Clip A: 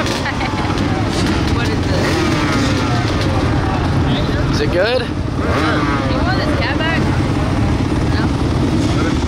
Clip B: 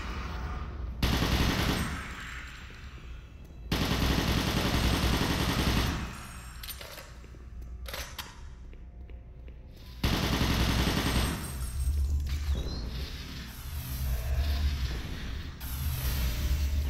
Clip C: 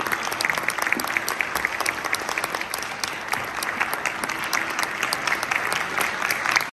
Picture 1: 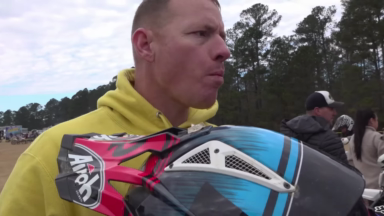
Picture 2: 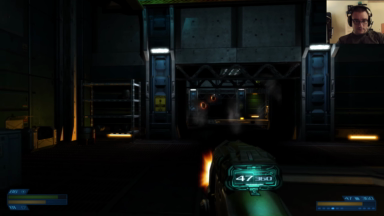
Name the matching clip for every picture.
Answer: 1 A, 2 B